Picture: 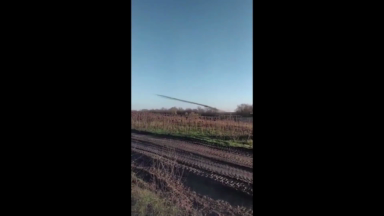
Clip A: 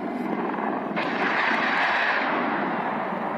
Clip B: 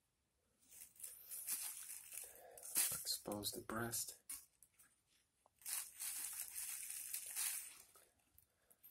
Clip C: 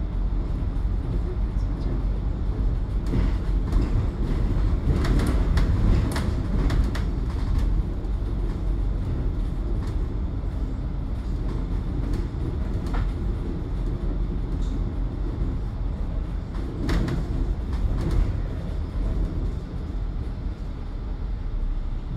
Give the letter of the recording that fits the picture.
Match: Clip A